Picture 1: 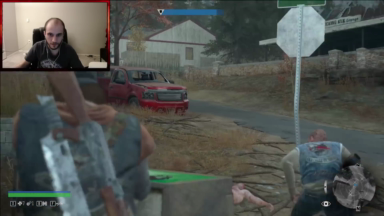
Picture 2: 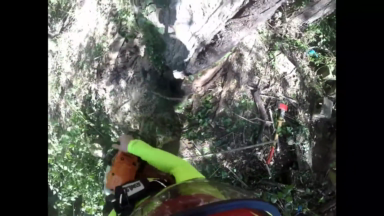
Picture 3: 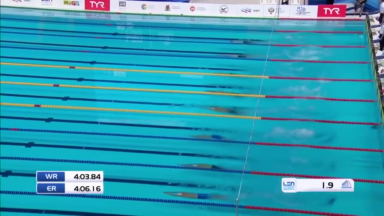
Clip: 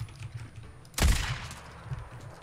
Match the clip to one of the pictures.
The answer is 1